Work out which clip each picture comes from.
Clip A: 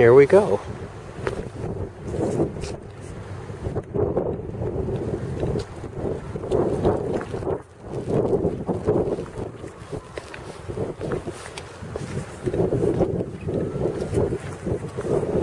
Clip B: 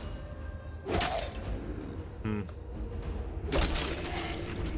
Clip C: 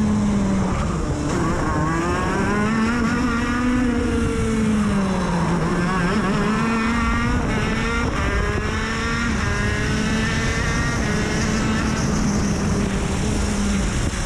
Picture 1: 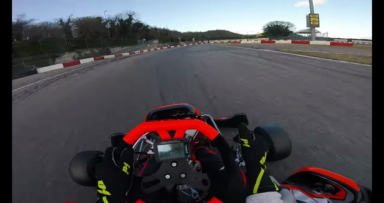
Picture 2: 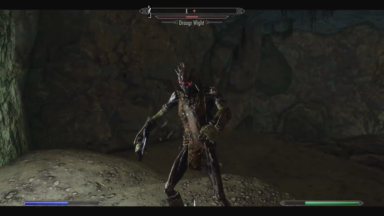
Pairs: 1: C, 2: B